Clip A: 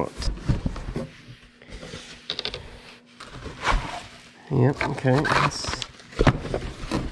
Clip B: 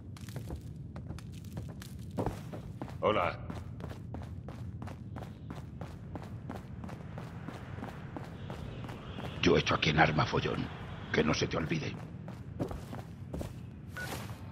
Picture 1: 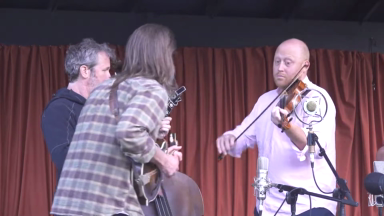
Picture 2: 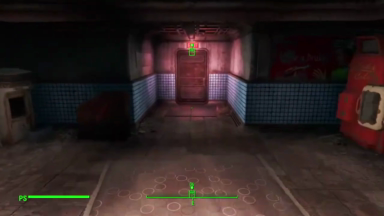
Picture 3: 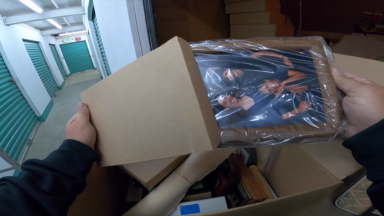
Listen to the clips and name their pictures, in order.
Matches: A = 3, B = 2